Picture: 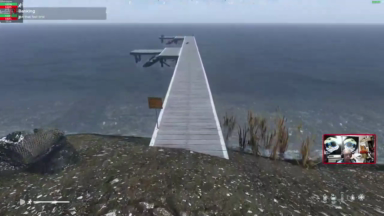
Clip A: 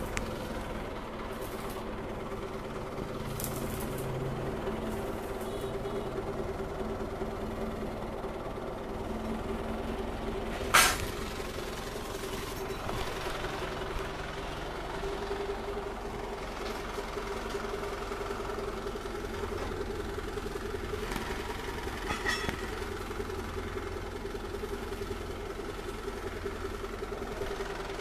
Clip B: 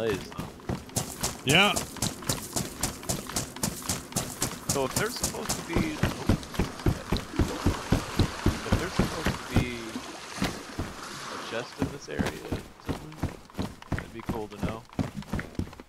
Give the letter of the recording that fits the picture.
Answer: B